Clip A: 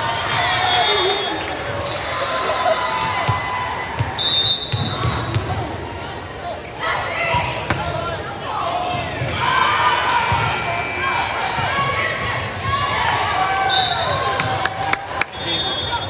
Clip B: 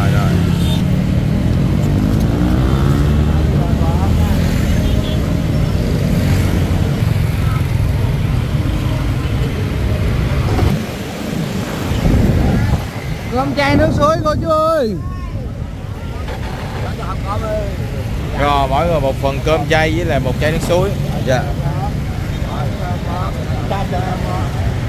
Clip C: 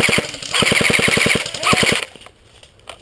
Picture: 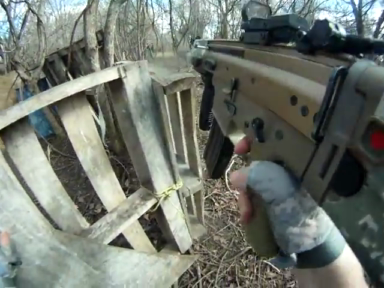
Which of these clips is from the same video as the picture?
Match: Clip C